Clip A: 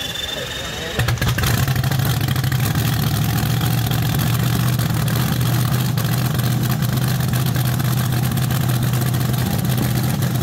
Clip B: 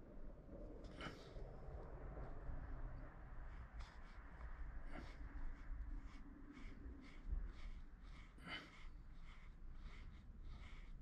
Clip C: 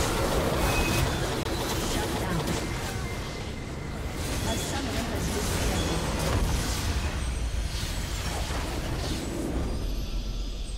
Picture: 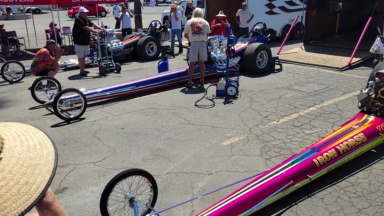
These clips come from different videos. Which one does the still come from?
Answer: A